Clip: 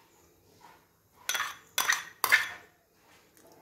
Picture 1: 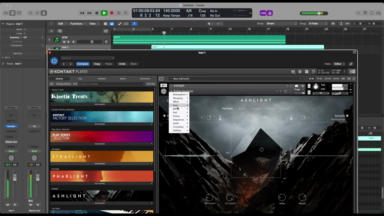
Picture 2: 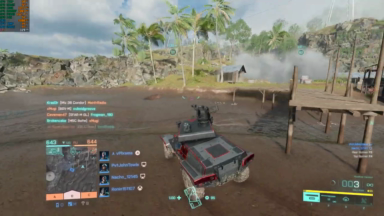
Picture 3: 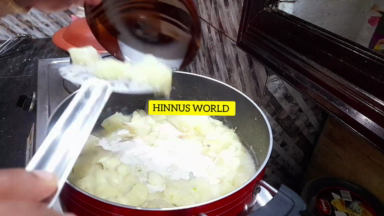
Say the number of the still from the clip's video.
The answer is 3